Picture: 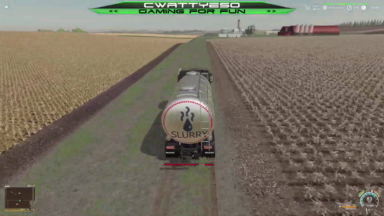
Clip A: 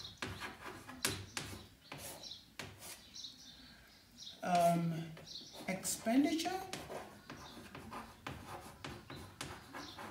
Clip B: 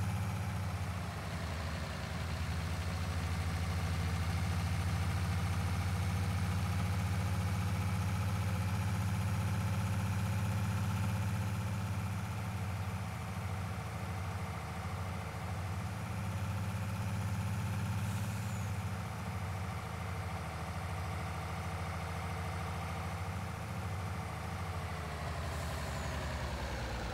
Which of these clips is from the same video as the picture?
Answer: B